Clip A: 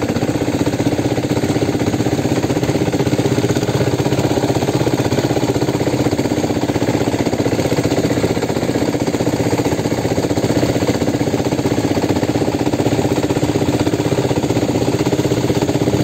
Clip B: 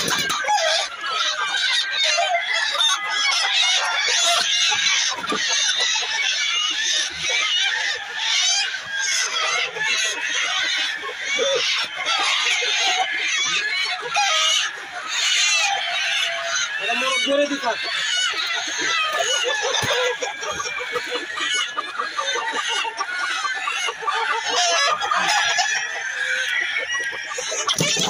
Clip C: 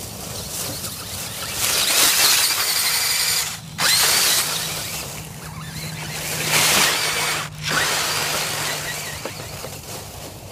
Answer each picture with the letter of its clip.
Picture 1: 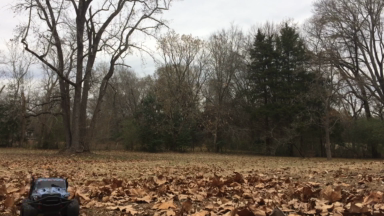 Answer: C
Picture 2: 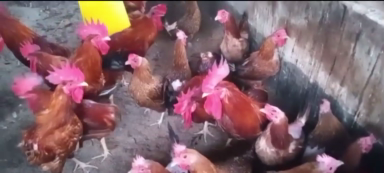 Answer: B